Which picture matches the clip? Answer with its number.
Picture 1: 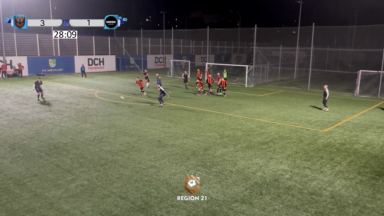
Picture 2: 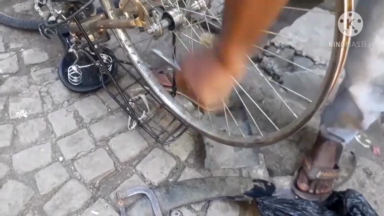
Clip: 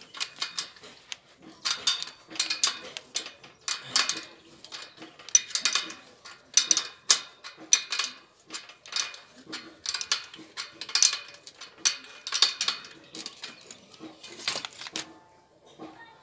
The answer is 2